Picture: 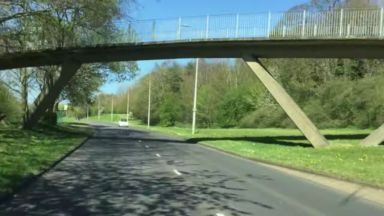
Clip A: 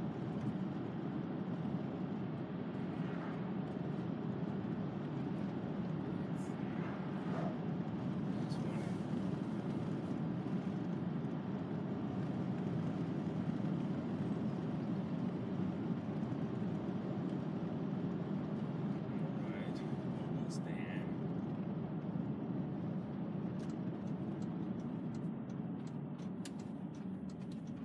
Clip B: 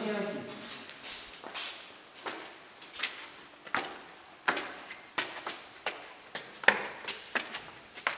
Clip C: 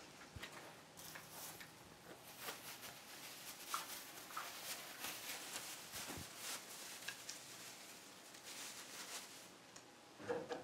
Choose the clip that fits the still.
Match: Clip A